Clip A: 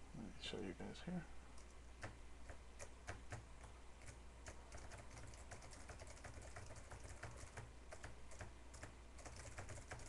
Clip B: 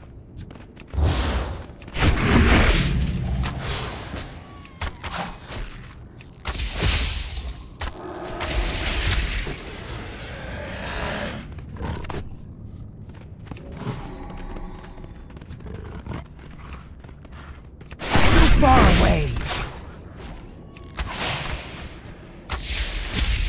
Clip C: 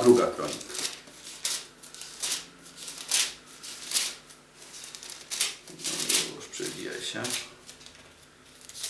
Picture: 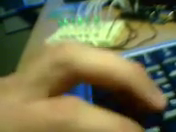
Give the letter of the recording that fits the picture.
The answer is A